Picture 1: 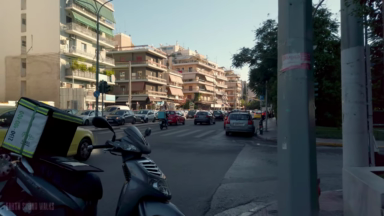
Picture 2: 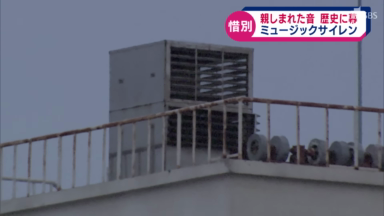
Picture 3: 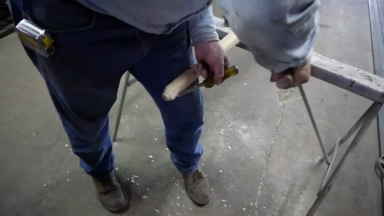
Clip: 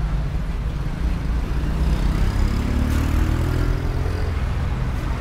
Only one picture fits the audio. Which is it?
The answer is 1